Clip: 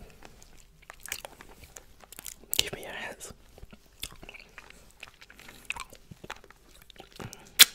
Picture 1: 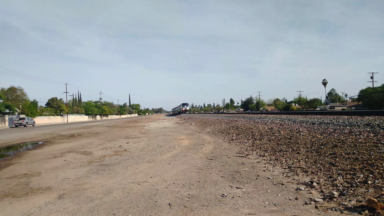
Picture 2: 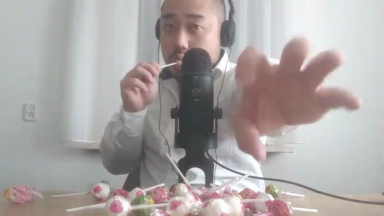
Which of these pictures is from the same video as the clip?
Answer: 2